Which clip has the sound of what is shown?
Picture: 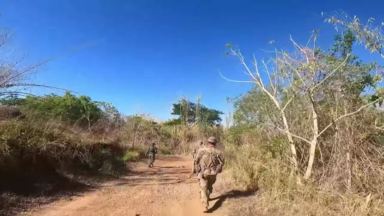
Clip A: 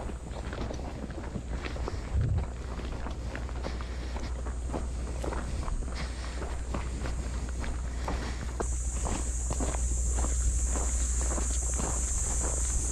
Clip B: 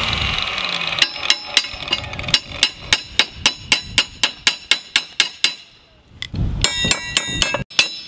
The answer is A